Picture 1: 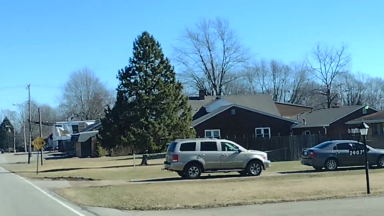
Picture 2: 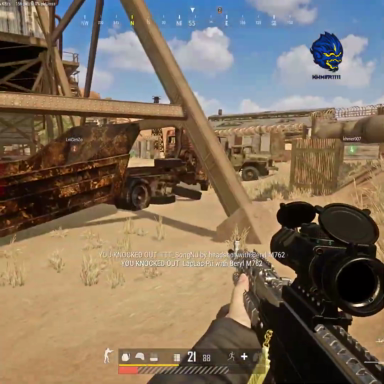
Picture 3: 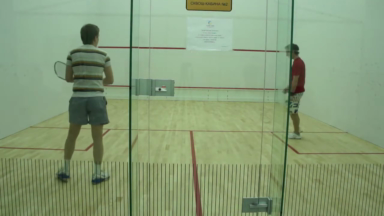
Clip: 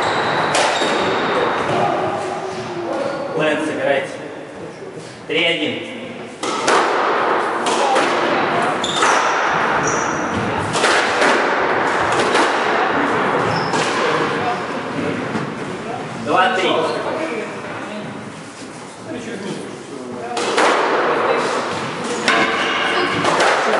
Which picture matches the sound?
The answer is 3